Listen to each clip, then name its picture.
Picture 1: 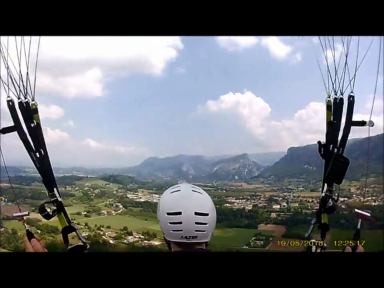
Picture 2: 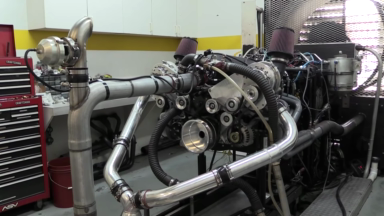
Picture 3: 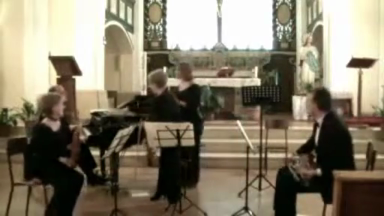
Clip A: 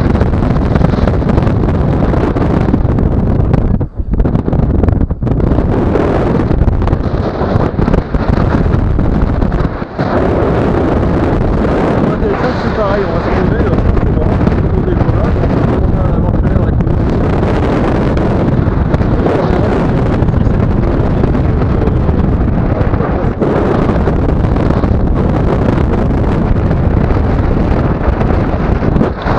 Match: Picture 1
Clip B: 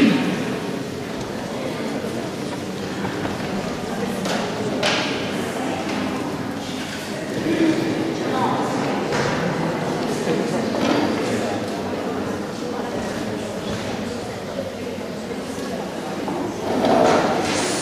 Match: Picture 3